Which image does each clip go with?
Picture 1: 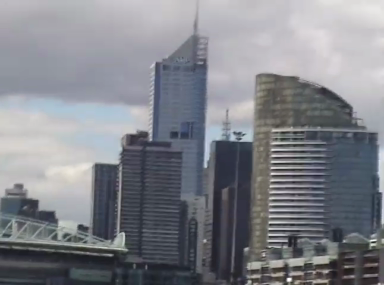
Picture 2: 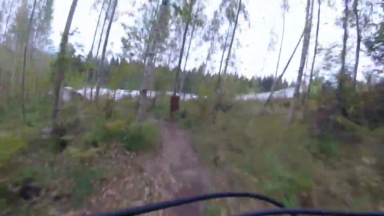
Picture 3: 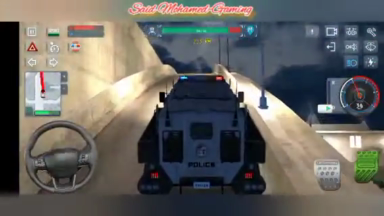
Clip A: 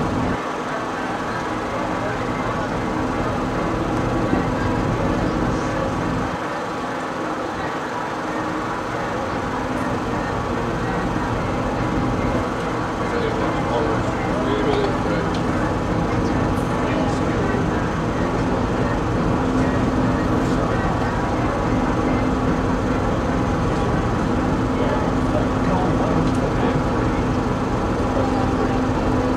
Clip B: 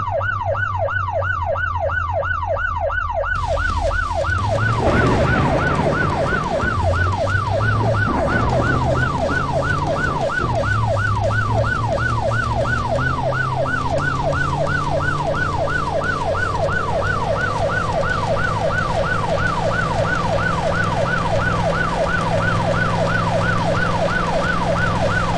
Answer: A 1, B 3